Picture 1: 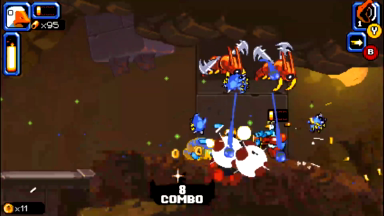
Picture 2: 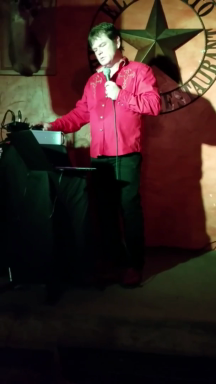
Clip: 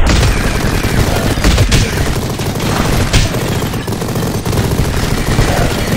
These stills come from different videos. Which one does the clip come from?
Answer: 1